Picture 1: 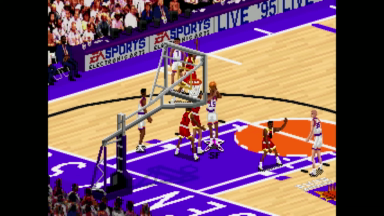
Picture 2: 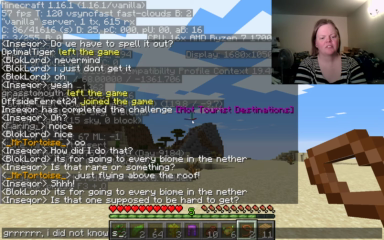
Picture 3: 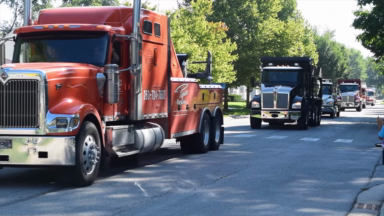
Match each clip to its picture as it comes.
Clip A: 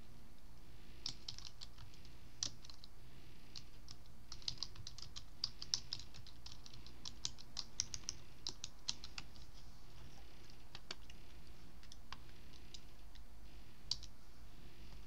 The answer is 2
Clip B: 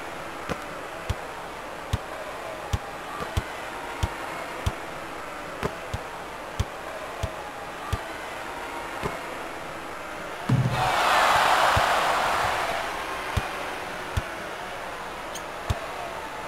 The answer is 1